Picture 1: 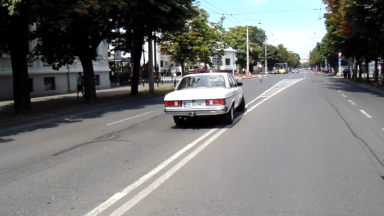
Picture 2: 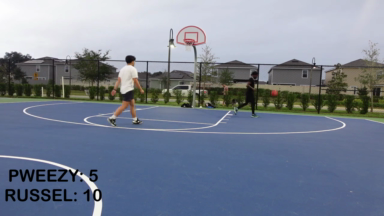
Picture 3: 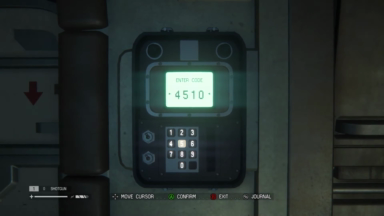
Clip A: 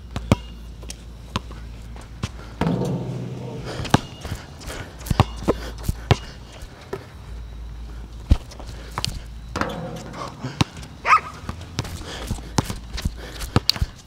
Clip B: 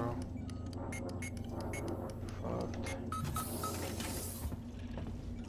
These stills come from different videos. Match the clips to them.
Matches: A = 2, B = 3